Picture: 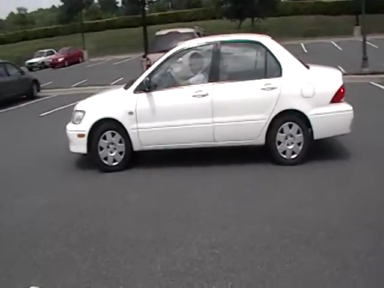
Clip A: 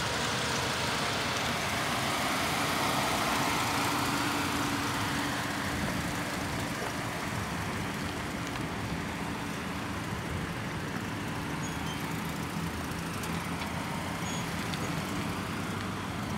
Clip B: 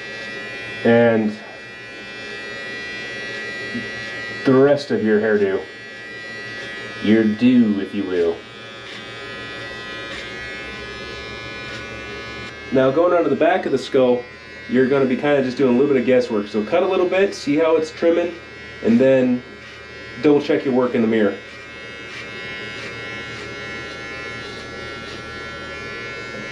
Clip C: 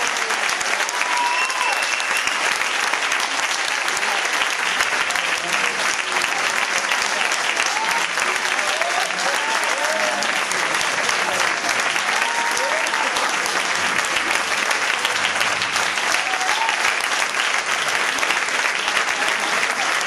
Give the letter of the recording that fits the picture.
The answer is A